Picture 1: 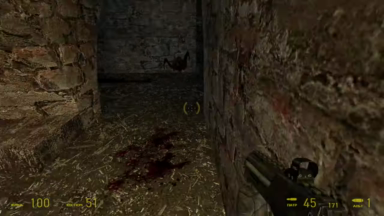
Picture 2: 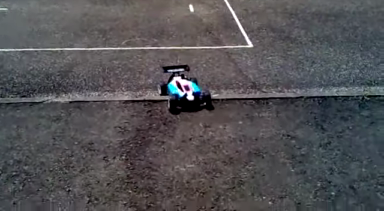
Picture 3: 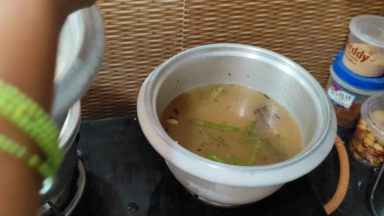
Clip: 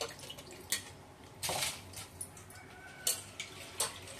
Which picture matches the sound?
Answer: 3